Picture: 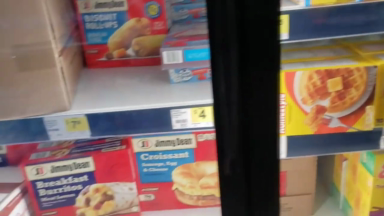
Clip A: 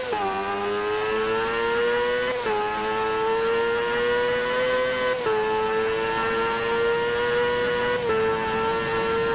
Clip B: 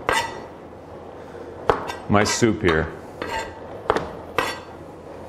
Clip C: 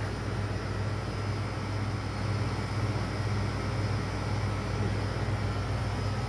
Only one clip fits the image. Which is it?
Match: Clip C